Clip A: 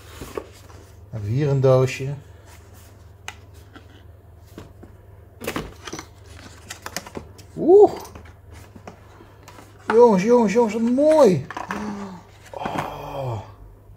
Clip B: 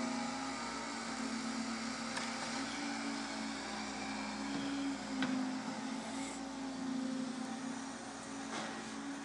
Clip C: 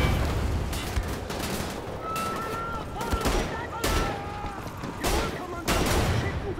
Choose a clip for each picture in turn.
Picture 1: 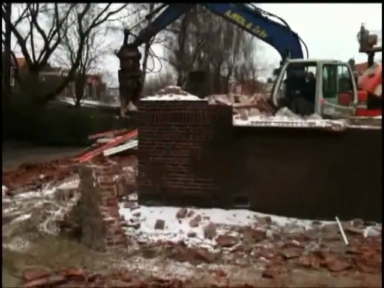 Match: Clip B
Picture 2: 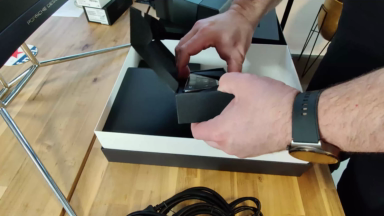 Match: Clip A